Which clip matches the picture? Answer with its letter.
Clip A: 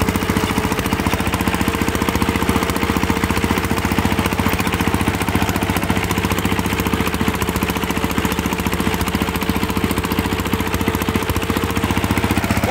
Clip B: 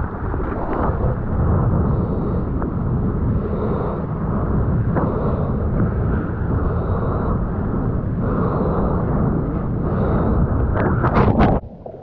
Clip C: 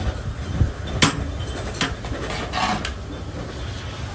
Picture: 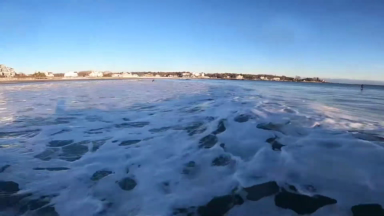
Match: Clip B